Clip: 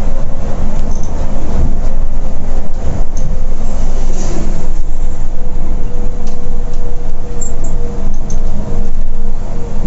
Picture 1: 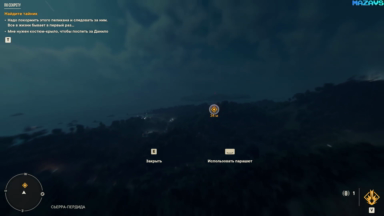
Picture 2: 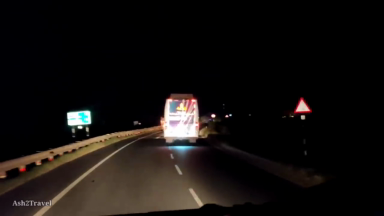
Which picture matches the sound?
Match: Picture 2